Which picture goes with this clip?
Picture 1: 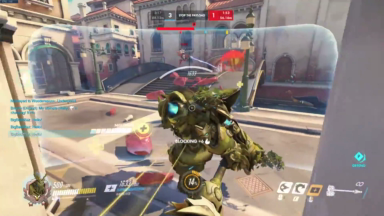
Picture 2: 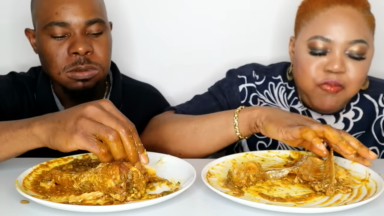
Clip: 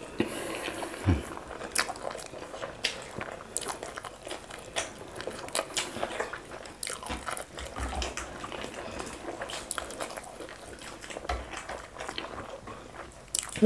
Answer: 2